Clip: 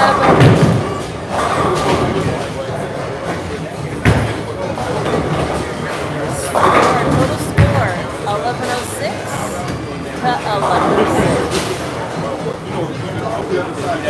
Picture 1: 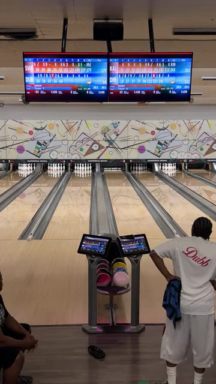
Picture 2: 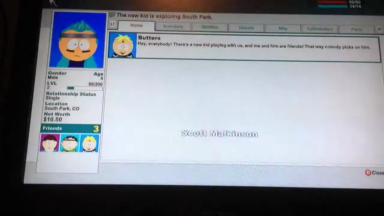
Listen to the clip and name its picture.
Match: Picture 1